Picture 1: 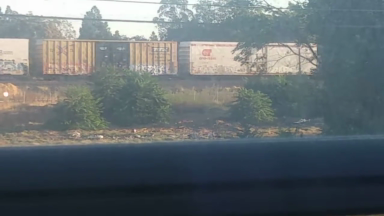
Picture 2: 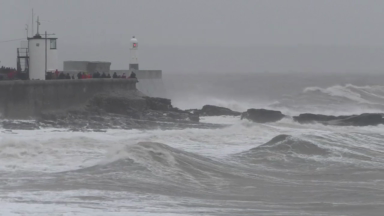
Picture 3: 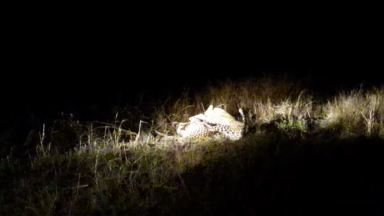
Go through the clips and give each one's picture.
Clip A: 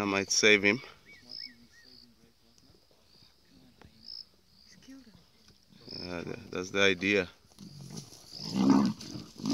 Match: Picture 3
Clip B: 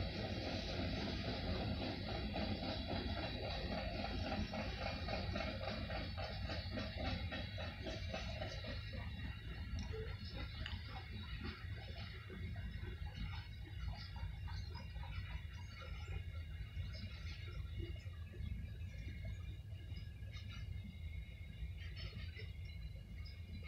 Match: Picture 1